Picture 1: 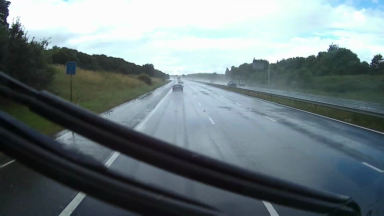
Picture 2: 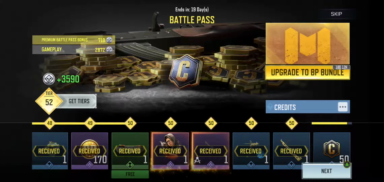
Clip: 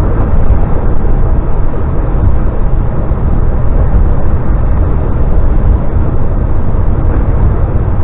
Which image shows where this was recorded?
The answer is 1